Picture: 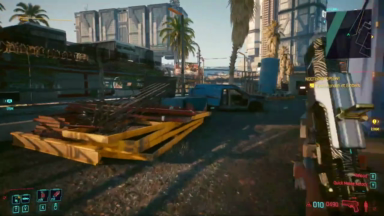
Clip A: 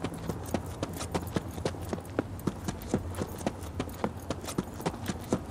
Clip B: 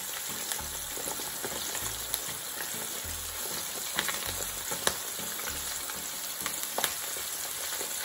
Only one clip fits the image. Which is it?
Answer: A